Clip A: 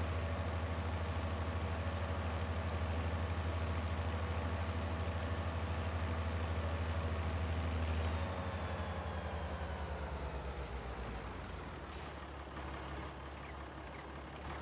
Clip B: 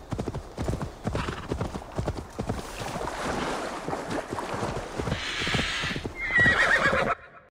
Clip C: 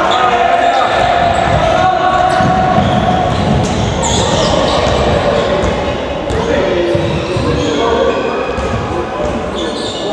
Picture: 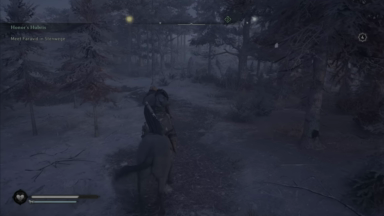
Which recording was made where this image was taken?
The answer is B